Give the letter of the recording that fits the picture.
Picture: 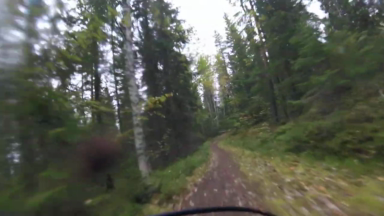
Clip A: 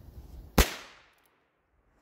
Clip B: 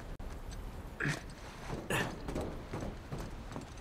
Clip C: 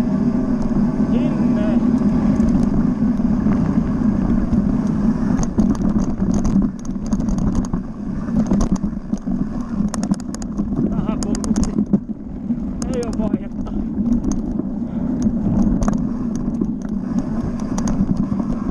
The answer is C